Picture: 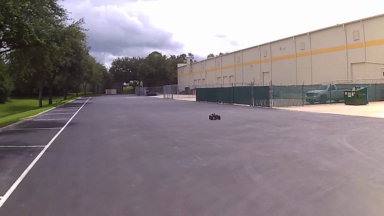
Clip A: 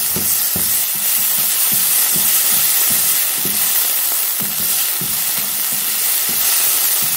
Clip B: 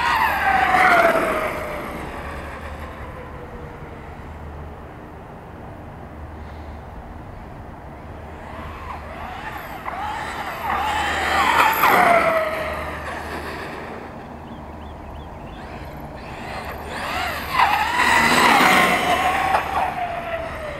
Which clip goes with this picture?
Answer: B